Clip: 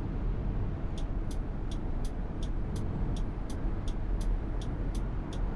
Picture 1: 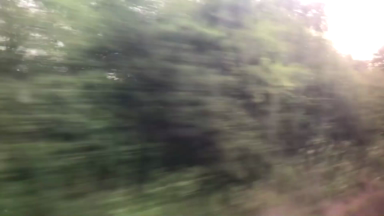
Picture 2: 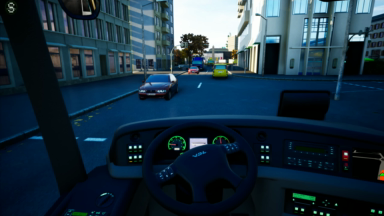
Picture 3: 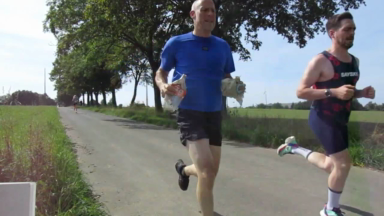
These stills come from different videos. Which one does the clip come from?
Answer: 2